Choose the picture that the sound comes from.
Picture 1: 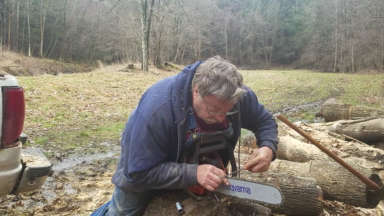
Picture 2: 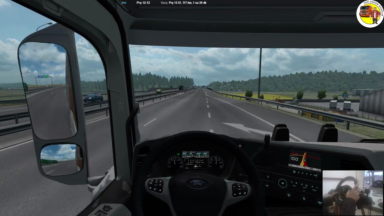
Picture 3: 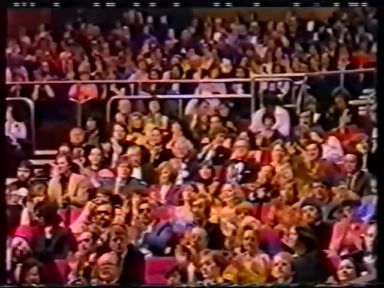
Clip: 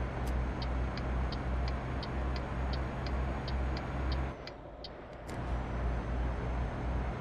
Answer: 2